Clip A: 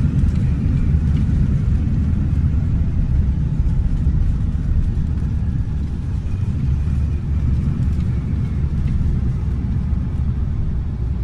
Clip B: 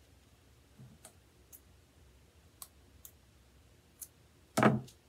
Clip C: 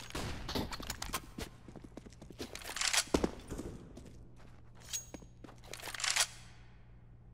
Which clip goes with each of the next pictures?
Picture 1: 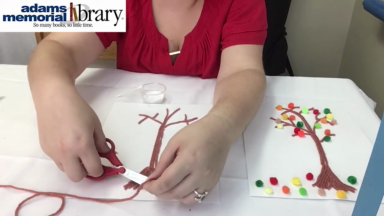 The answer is B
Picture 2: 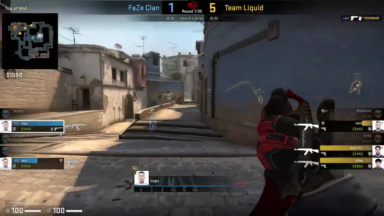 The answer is C